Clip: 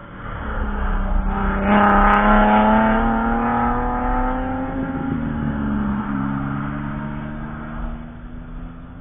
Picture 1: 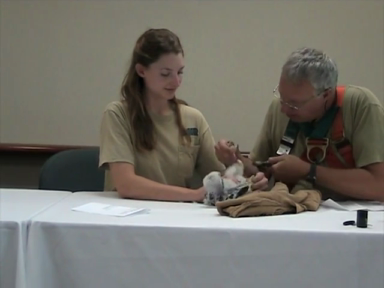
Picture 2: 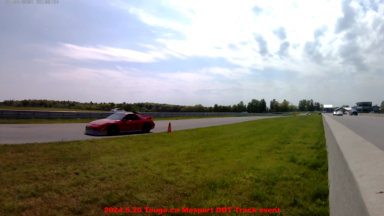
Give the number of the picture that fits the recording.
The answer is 2